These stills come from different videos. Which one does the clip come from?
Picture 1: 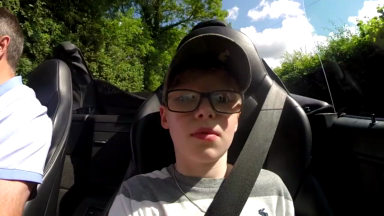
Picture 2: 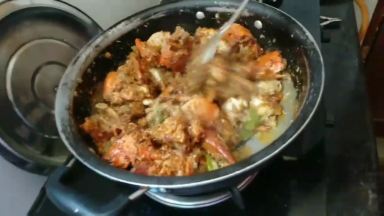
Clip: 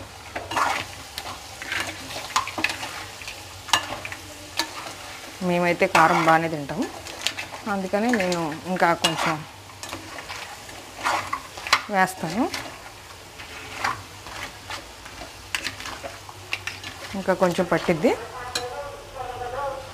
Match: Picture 2